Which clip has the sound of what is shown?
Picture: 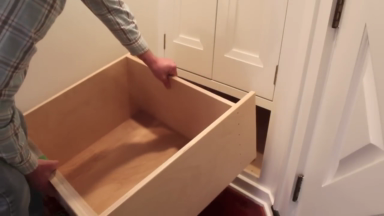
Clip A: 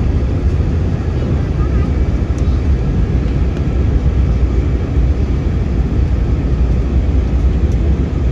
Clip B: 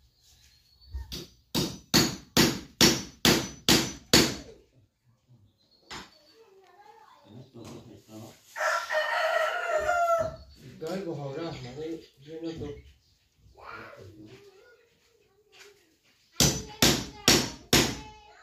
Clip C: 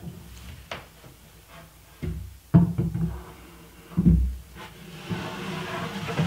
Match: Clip C